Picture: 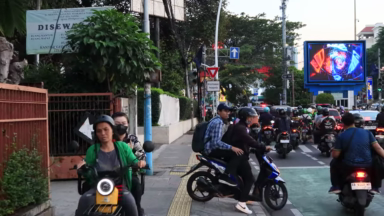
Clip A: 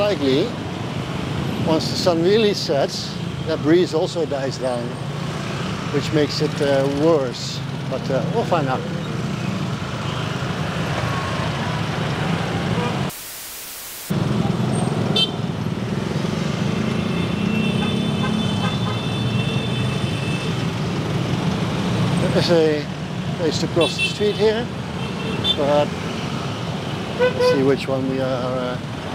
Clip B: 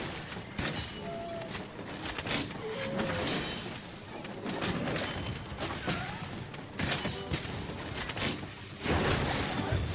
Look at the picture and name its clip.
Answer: A